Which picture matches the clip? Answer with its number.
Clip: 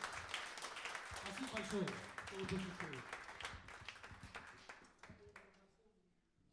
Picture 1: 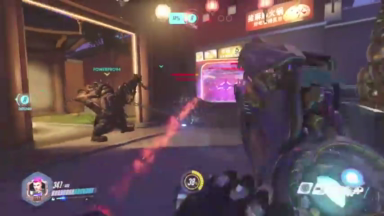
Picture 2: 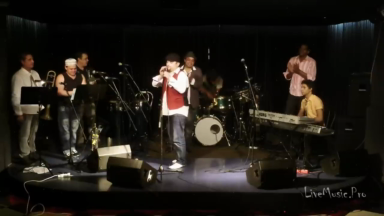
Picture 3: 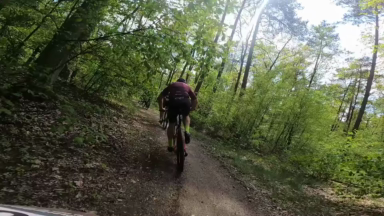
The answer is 2